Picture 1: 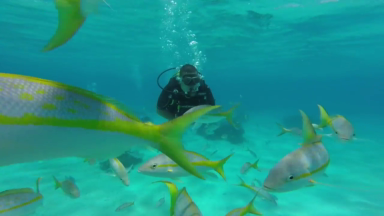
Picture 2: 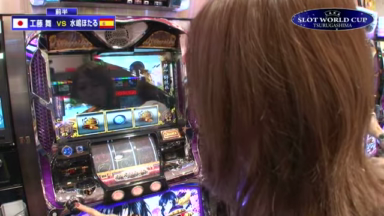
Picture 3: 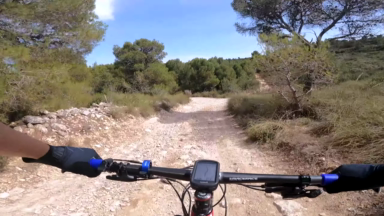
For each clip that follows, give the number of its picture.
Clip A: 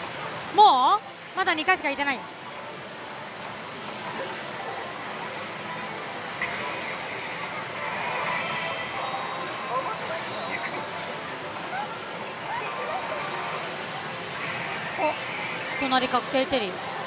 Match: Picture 2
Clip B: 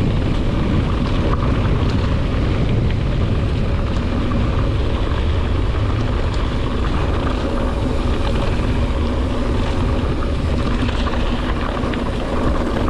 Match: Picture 3